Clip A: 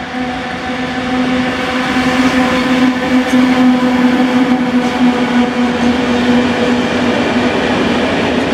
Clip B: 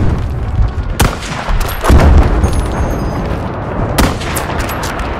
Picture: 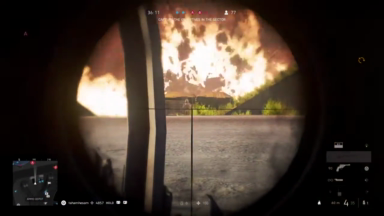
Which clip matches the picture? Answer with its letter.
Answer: B